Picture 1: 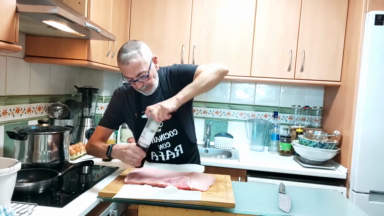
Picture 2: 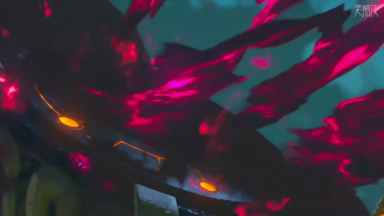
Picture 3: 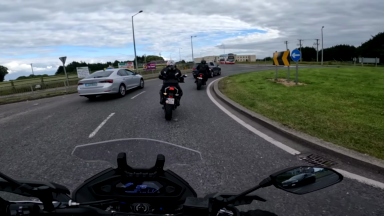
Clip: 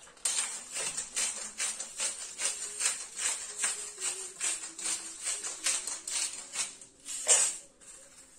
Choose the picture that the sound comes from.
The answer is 1